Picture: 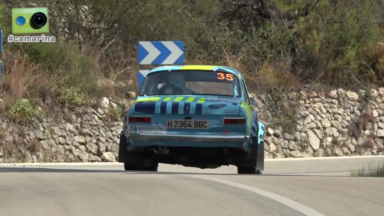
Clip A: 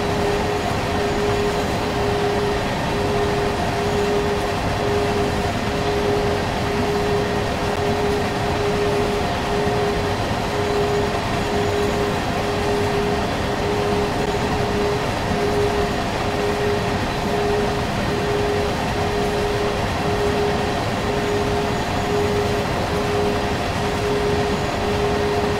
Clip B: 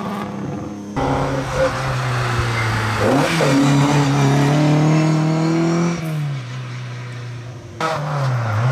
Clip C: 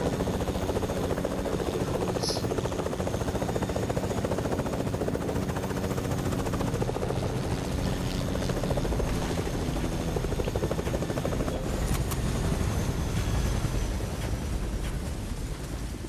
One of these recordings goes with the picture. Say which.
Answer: B